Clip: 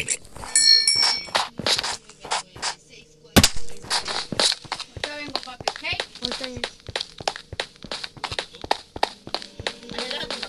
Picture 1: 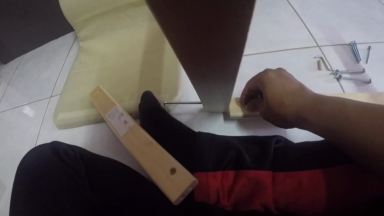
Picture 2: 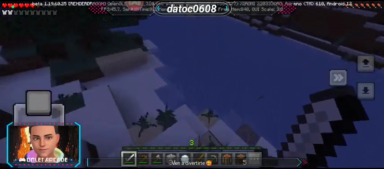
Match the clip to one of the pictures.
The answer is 2